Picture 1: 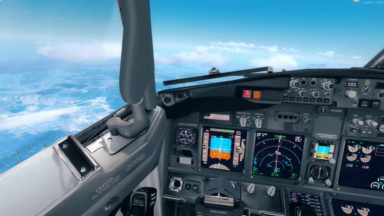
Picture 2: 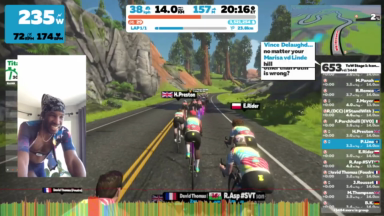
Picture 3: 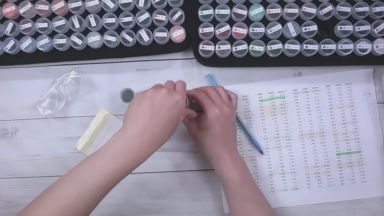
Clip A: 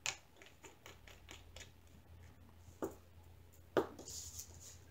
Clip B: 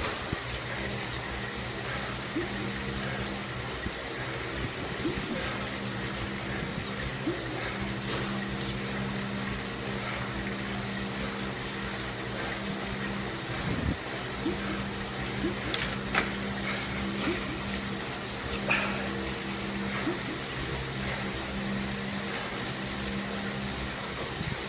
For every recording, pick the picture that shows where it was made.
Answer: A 3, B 2